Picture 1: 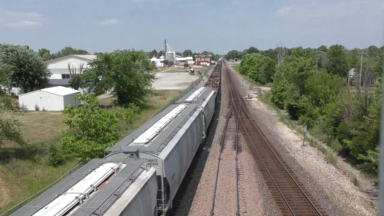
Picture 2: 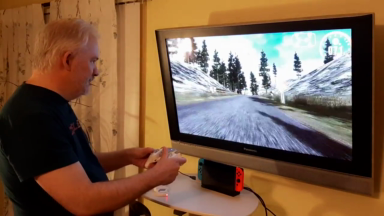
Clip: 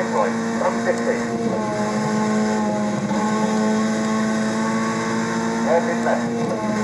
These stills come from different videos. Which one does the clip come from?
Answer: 2